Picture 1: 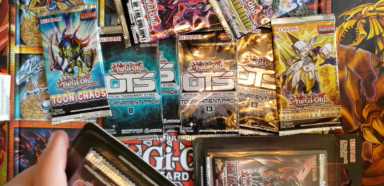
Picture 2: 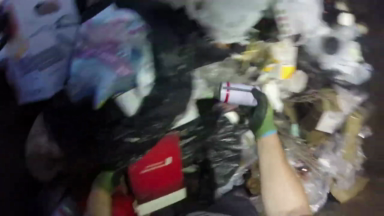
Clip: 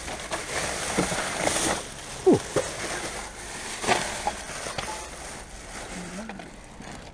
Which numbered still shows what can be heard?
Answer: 2